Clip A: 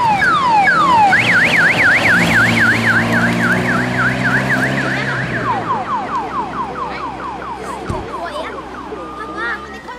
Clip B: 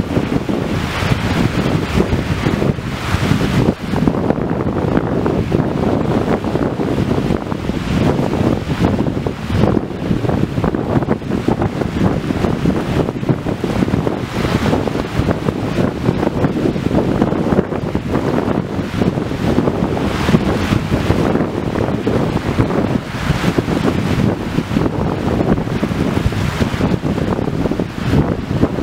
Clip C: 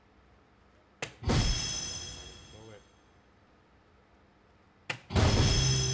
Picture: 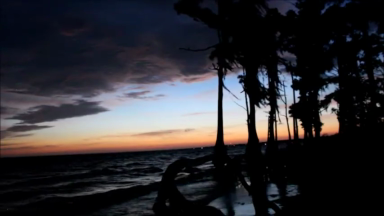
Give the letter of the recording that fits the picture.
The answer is B